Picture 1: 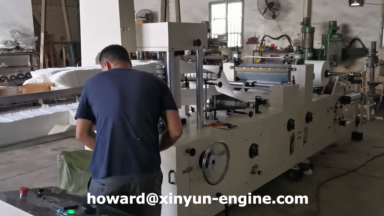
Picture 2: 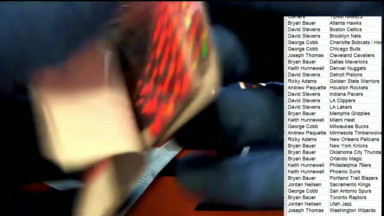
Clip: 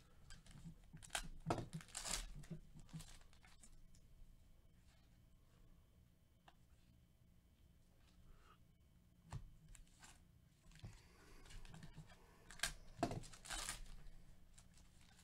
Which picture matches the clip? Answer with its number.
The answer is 2